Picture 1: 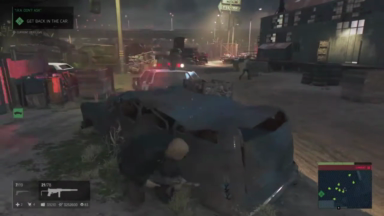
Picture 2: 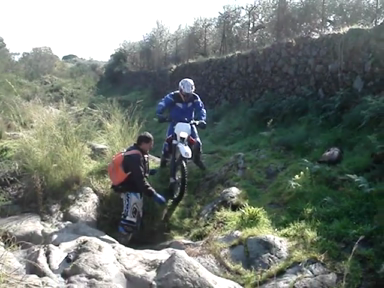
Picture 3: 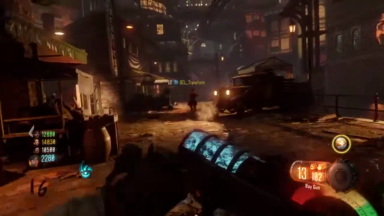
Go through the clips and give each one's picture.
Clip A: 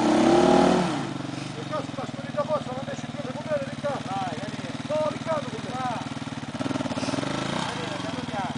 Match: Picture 2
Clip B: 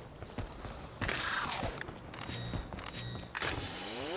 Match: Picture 3